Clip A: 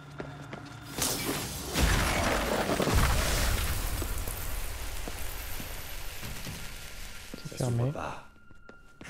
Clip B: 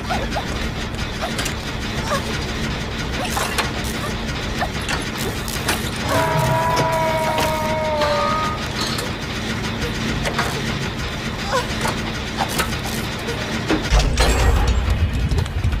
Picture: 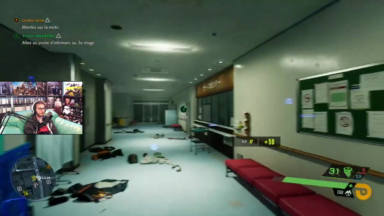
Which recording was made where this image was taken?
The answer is A